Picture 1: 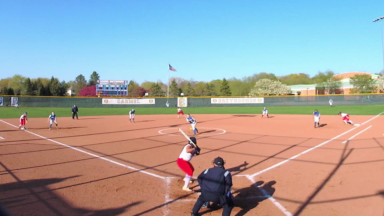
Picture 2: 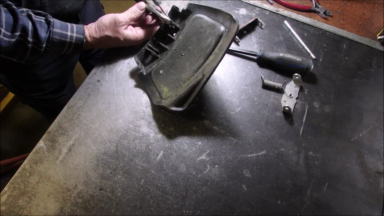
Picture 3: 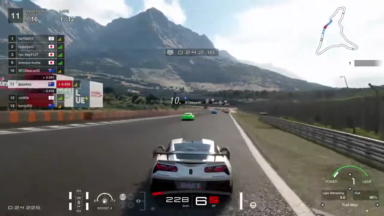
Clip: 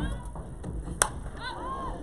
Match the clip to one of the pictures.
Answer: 1